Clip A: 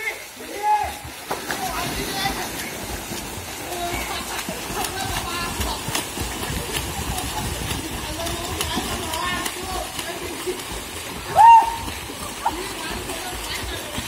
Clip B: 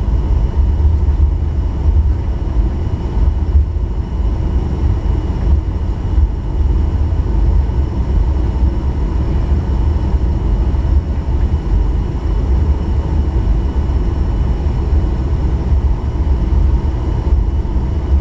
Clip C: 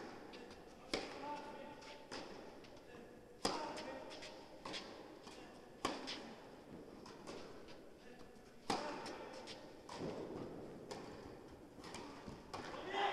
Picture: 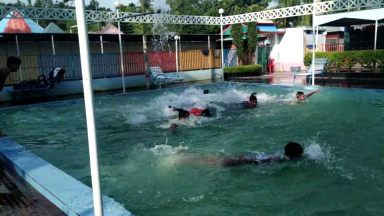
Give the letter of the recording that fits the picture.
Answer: A